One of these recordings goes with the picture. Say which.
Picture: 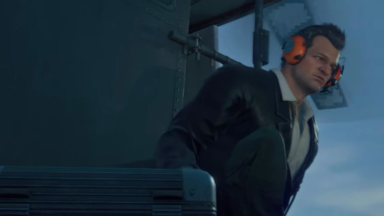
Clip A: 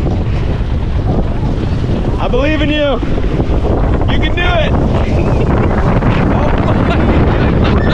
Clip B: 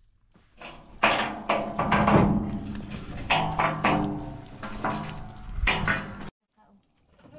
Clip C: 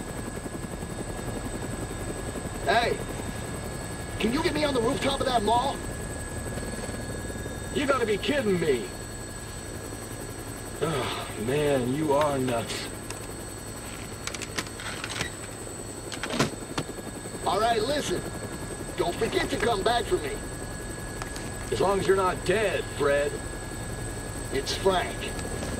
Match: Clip C